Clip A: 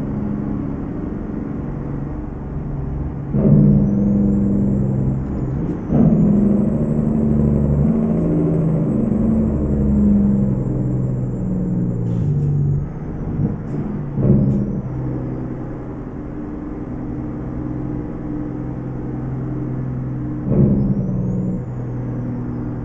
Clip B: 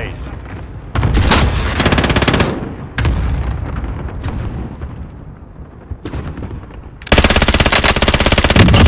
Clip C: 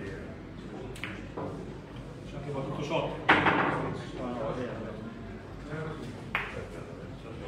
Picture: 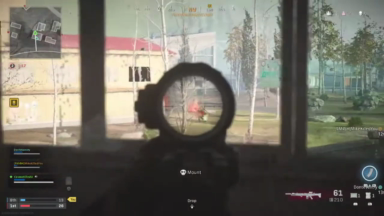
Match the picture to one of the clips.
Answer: B